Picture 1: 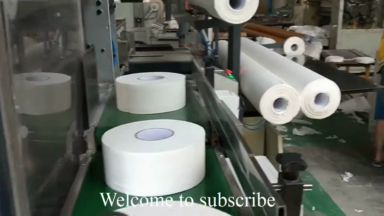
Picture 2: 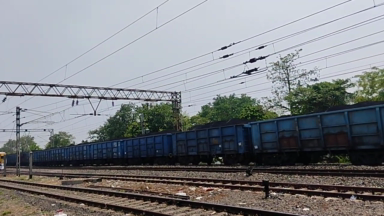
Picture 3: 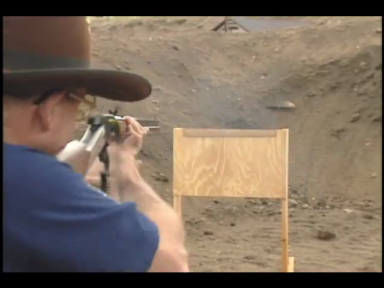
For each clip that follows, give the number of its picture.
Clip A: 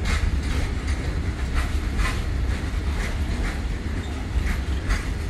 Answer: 2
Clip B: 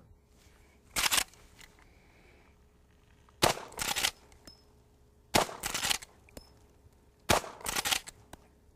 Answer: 3